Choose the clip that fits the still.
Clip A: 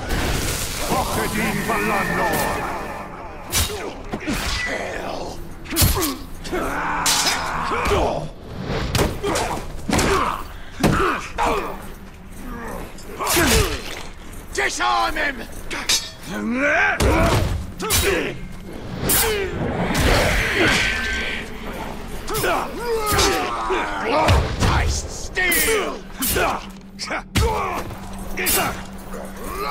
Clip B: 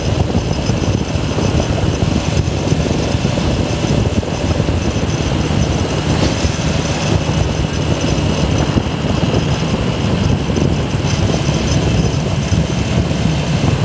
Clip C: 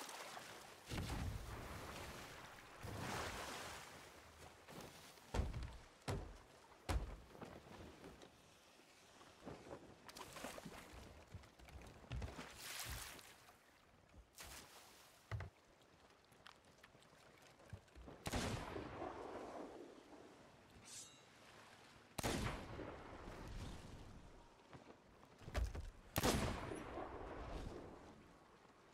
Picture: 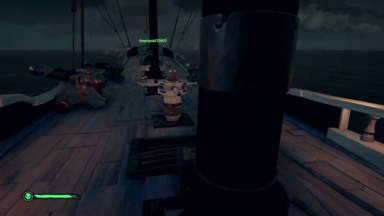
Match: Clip C